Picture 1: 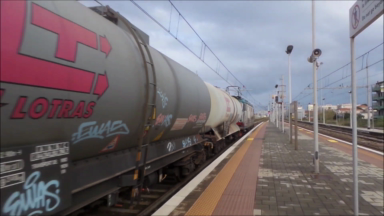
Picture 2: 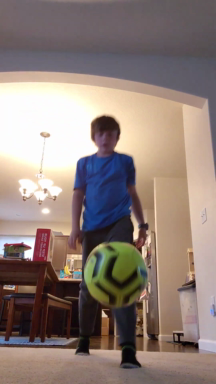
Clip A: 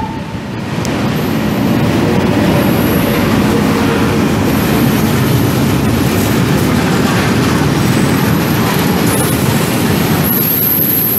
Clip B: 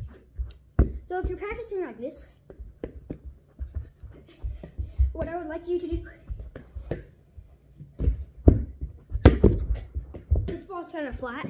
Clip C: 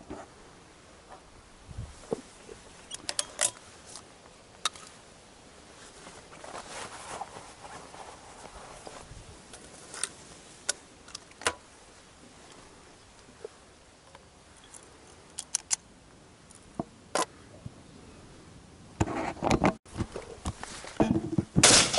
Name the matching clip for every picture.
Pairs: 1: A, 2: B